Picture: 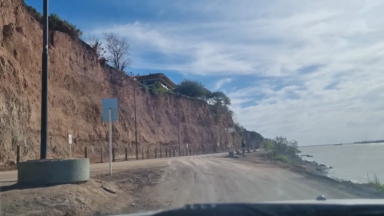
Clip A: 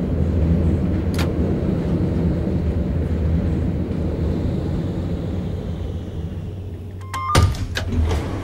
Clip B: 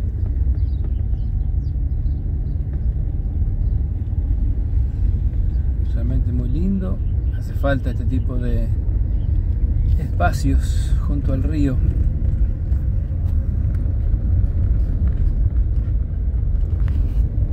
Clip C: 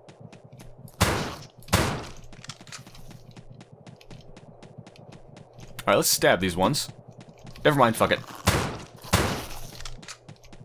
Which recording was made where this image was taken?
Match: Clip B